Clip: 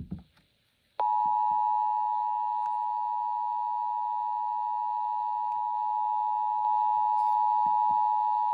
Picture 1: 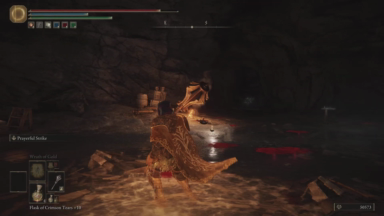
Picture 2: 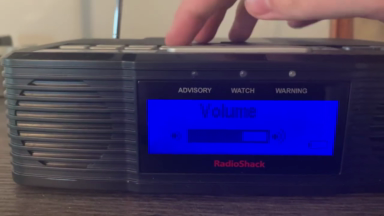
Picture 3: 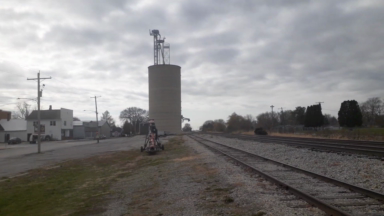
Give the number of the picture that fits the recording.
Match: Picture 2